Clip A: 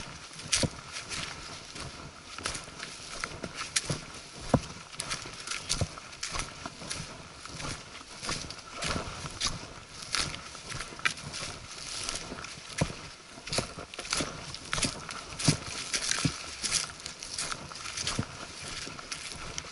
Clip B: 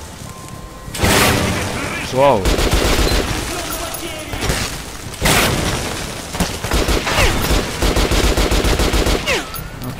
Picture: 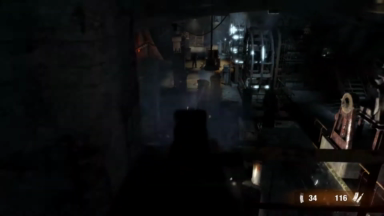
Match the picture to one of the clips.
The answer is B